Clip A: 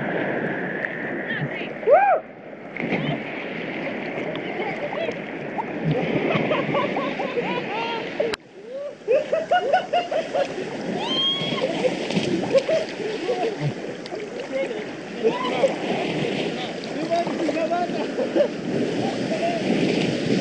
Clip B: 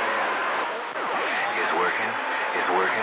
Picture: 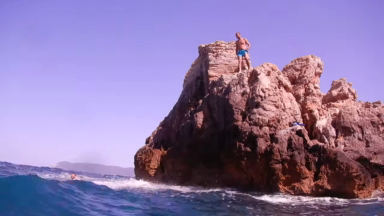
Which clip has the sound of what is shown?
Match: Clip A